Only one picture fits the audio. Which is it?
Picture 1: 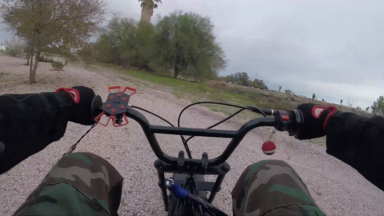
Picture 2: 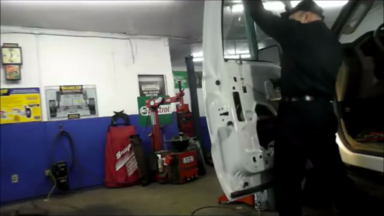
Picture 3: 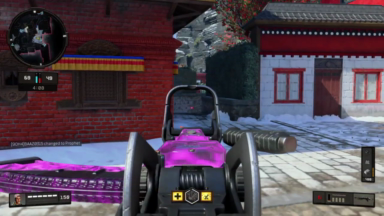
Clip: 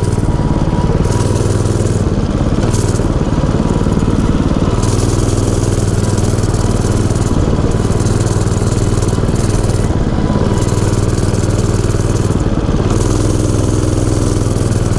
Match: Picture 1